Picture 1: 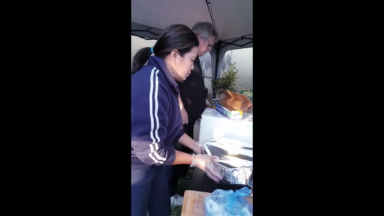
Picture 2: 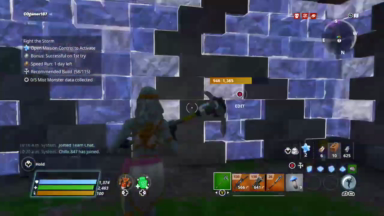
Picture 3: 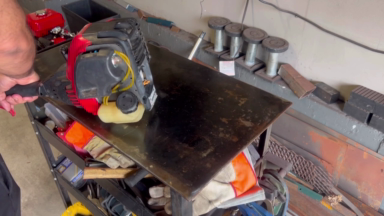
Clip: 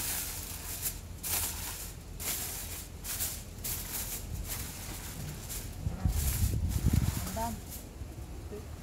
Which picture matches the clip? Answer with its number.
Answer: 1